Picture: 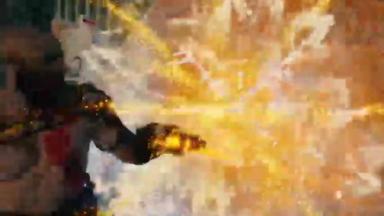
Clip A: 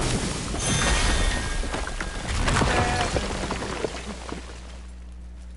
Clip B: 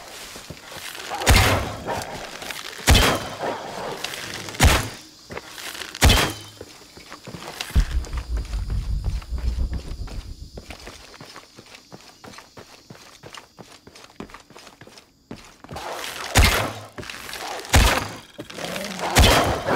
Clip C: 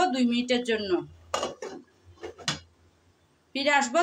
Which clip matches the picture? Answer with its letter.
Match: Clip A